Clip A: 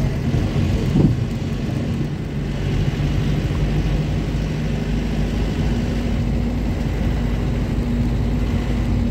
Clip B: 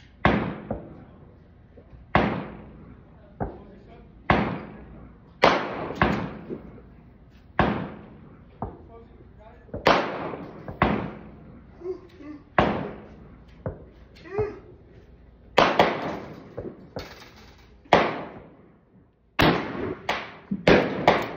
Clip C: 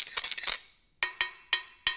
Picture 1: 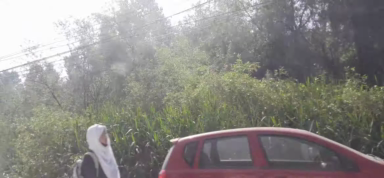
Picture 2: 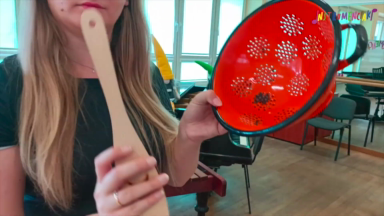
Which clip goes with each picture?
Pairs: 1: A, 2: C